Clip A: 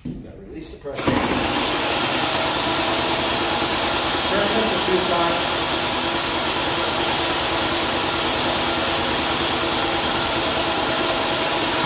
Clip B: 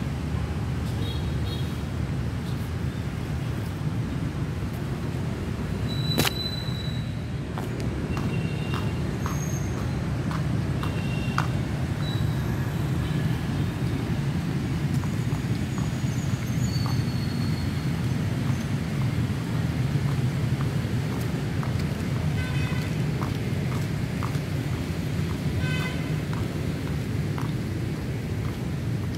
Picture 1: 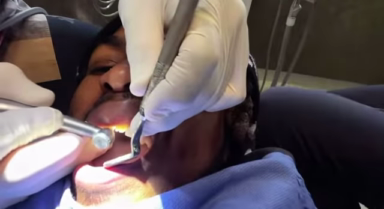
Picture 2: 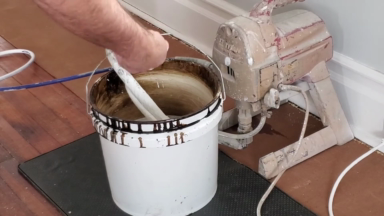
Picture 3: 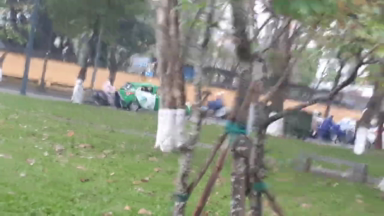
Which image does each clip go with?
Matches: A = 2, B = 3